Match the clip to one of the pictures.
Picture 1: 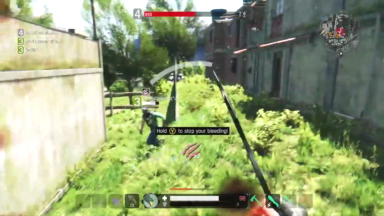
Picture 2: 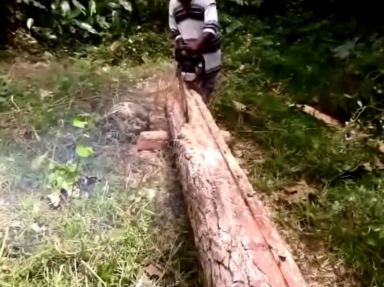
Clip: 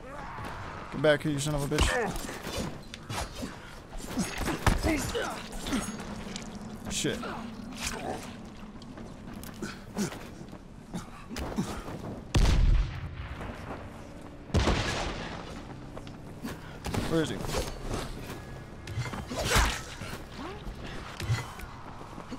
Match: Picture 1